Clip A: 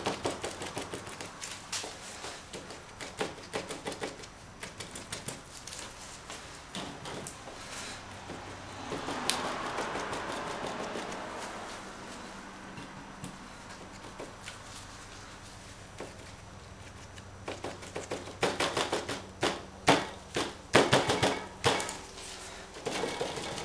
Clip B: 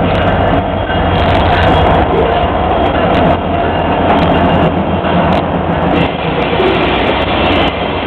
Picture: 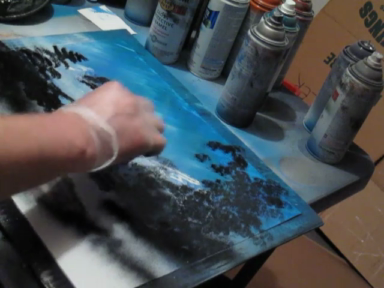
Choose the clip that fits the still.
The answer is A